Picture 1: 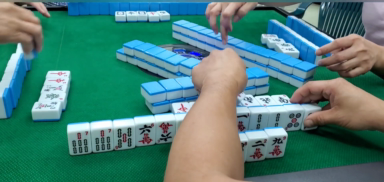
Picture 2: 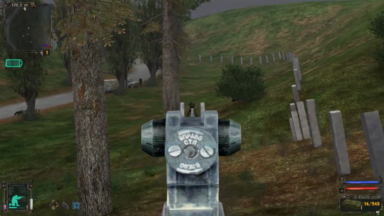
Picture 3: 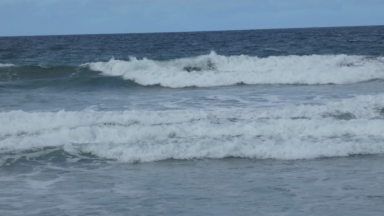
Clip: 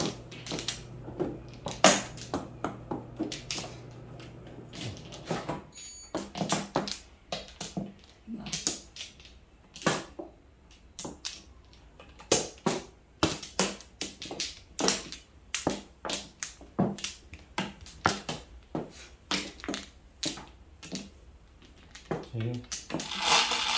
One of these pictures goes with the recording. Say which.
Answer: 1